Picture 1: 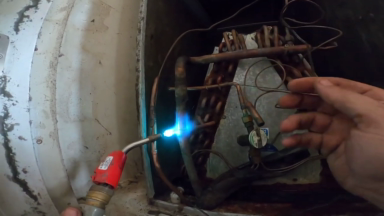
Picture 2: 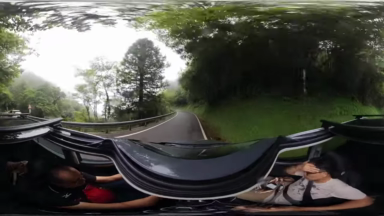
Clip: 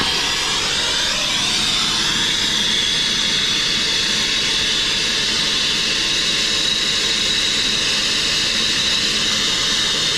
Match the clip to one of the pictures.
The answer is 1